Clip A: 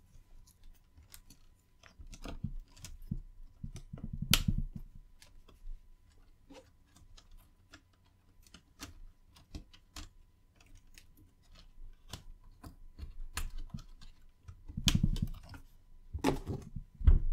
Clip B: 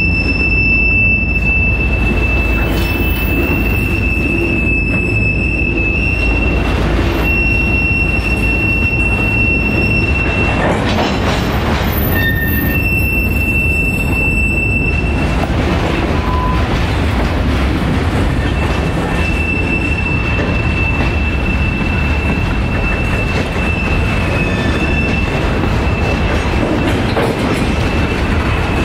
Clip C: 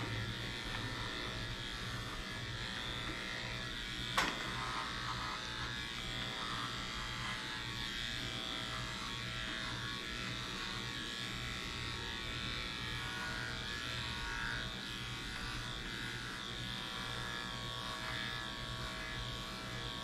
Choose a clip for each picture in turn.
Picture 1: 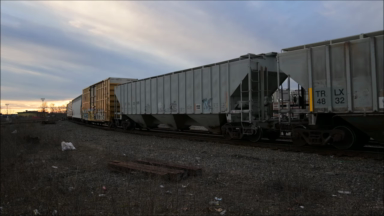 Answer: B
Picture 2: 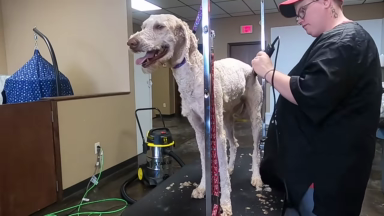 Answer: C